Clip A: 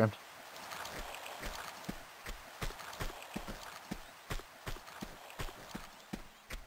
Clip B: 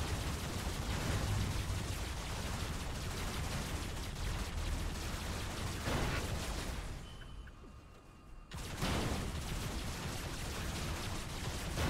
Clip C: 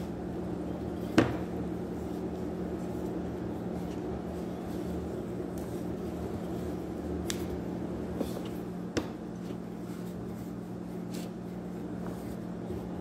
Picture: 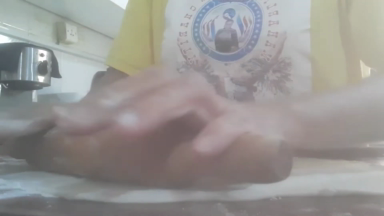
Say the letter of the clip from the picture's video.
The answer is C